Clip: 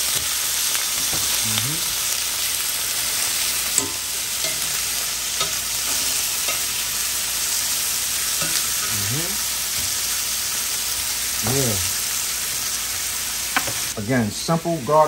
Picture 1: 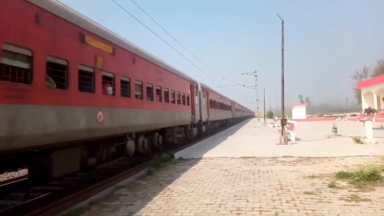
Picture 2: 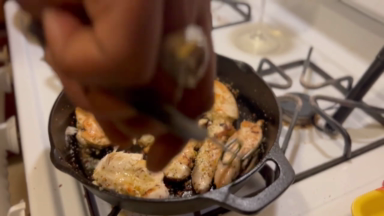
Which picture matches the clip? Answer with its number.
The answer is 2